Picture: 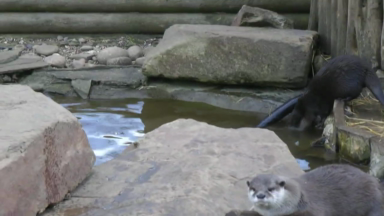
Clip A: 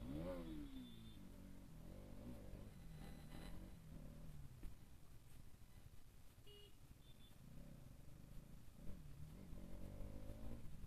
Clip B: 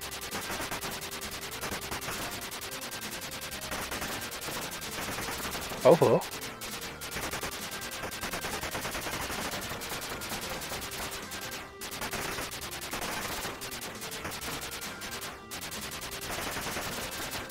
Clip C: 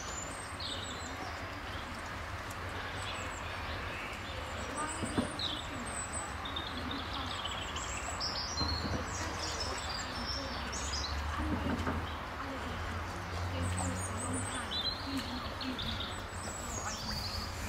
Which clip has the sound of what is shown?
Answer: C